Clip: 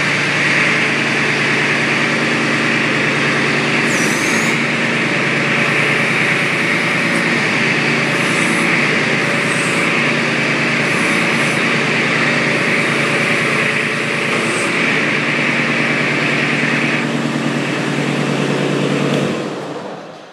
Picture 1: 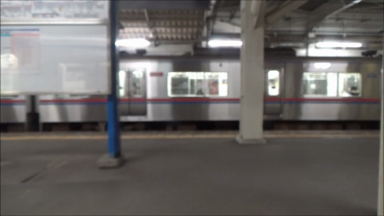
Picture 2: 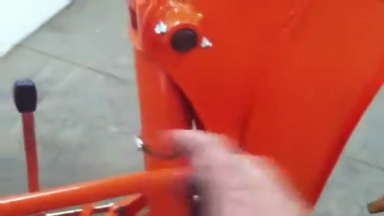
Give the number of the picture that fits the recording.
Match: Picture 2